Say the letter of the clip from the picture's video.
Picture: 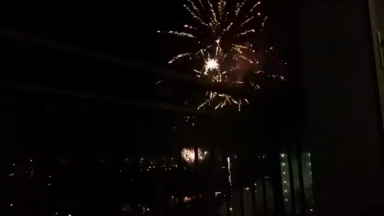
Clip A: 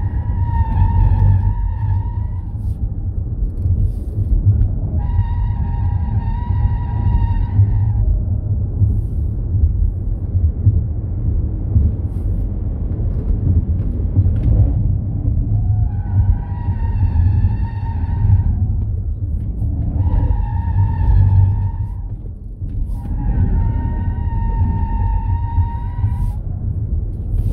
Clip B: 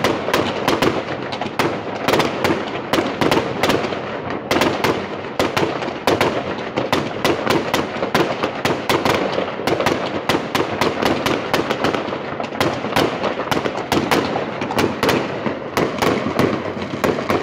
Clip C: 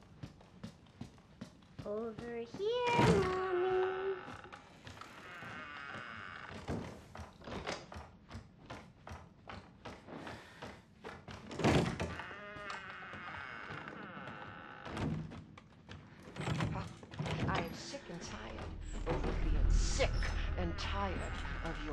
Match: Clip B